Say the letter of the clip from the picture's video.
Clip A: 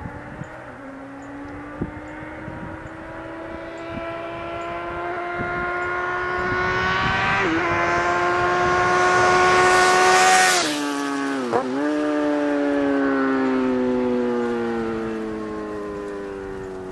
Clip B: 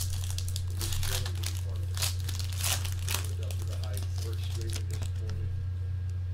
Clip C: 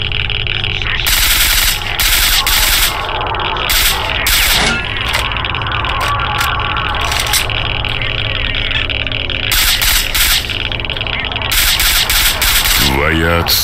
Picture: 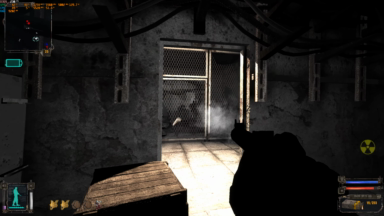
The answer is C